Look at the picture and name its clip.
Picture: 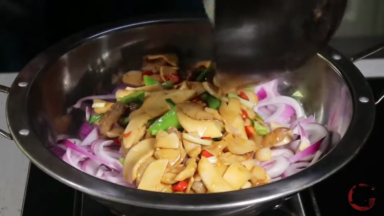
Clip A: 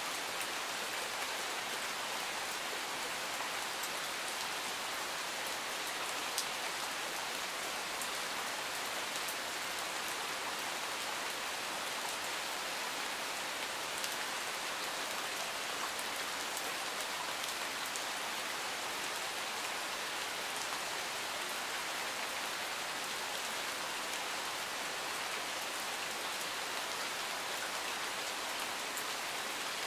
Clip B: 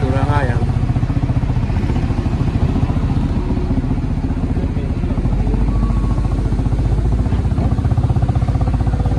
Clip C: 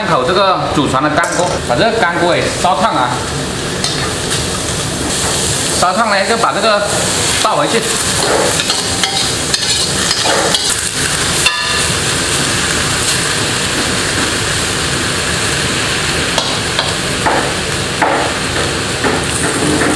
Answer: C